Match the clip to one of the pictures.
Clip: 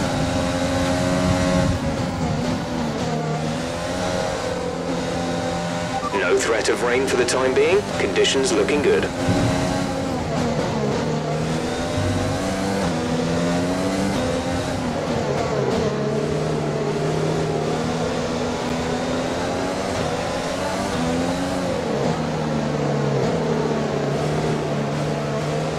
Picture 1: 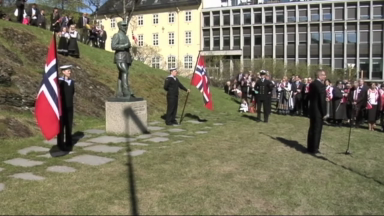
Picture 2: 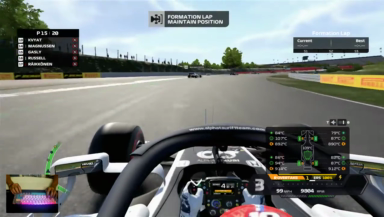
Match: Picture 2